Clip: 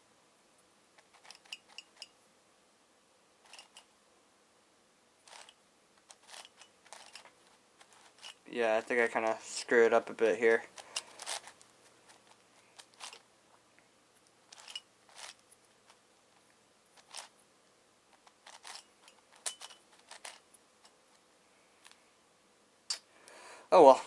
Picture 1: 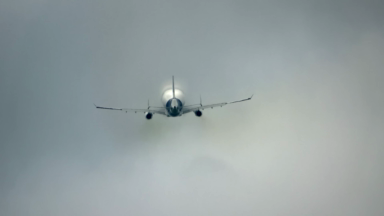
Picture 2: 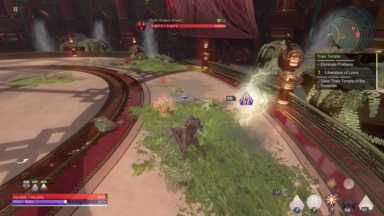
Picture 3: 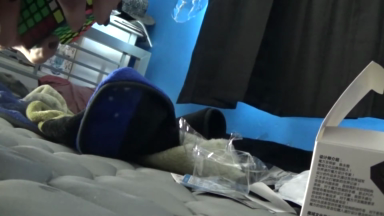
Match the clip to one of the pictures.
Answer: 3